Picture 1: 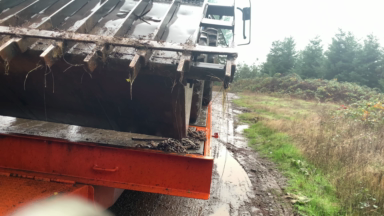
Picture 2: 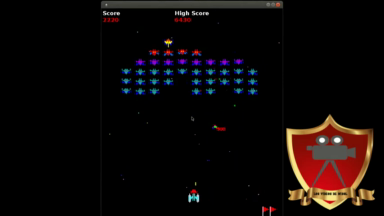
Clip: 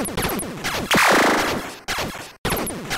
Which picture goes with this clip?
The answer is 2